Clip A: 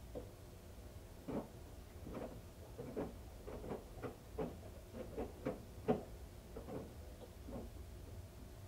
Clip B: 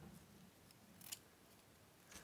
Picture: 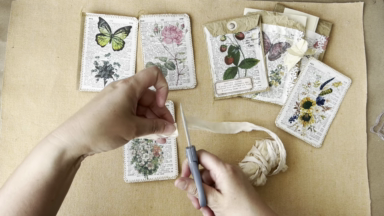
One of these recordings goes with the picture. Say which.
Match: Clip B